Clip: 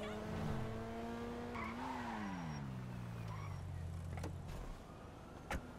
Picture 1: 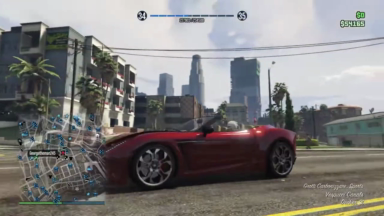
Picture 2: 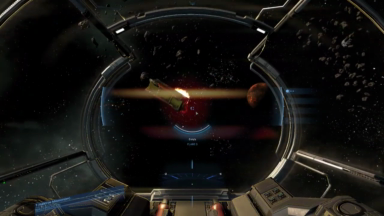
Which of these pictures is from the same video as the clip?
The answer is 1